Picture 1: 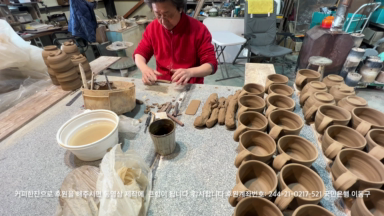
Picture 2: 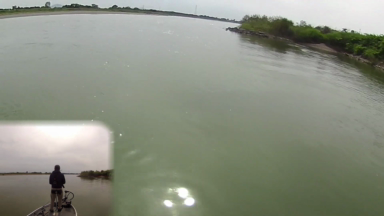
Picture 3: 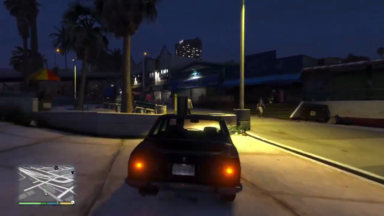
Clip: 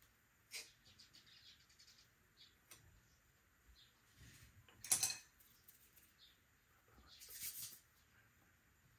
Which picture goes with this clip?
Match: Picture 1